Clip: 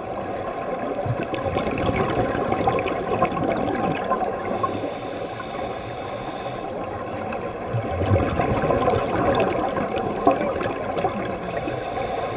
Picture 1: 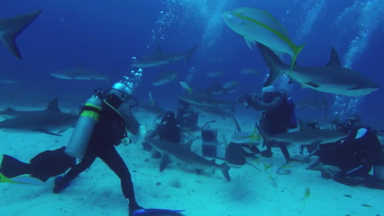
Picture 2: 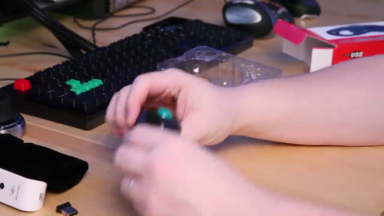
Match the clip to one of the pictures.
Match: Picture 1